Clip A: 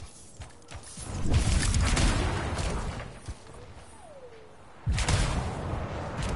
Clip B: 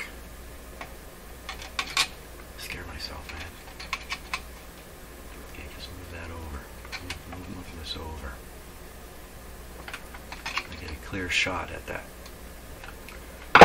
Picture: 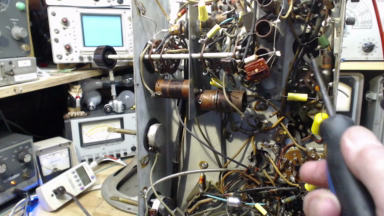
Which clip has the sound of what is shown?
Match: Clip B